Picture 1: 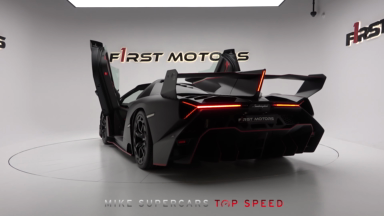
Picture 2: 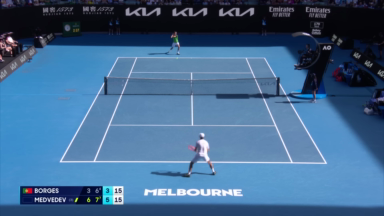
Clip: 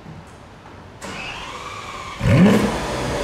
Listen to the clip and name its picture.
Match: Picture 1